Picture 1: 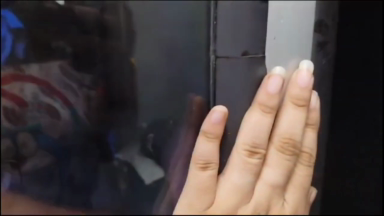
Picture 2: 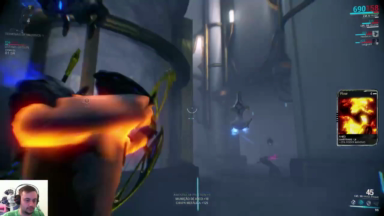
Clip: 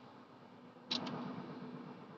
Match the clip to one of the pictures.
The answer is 1